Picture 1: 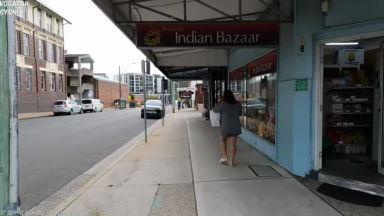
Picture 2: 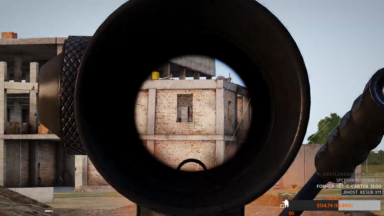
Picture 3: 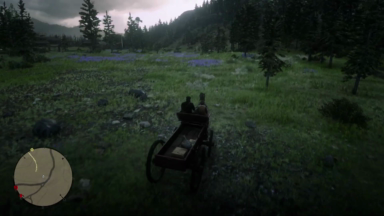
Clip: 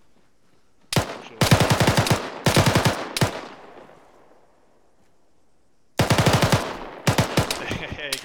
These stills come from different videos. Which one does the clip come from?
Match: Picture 2